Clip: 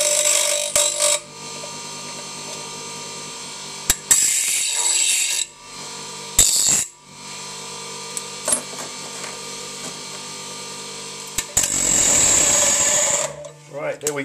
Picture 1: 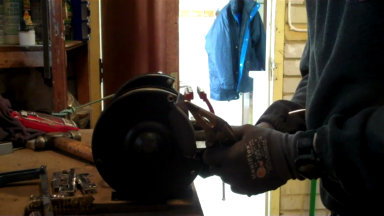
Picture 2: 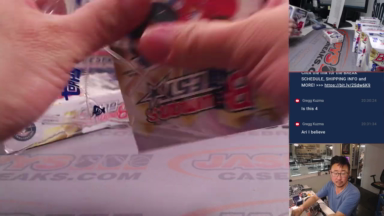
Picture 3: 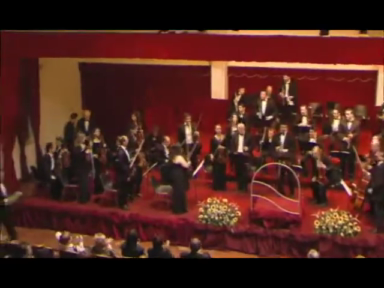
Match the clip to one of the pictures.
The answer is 1